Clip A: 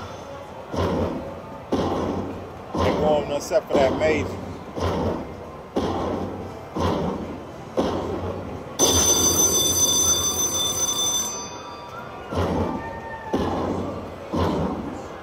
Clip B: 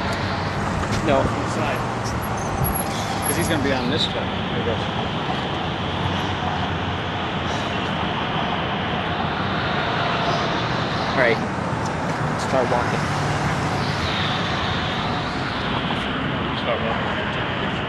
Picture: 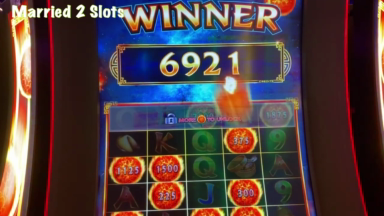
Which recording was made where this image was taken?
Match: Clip A